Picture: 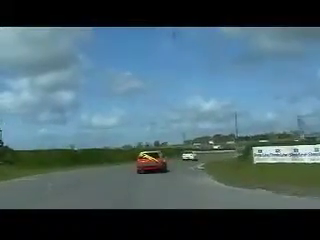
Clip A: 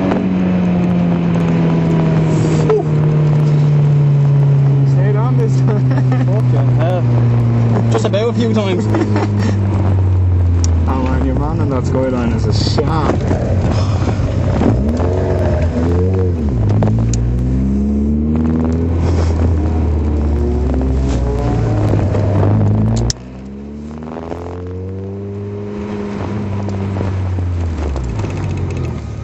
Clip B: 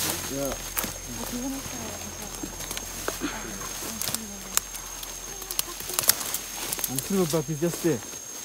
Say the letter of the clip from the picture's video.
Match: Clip A